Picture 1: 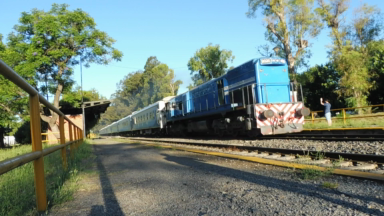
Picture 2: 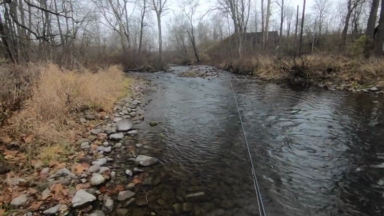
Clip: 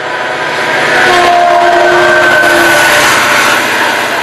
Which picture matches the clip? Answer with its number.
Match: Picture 1